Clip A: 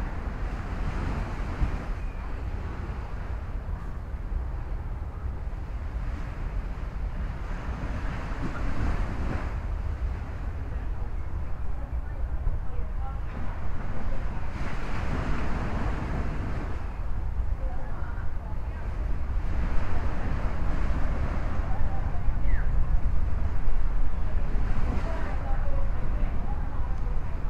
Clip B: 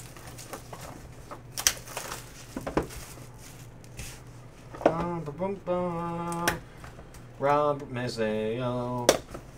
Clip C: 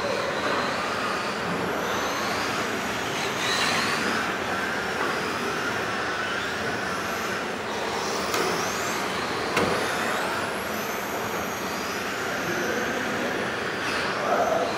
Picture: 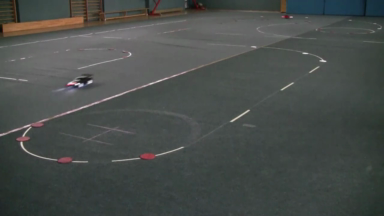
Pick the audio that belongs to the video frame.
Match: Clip C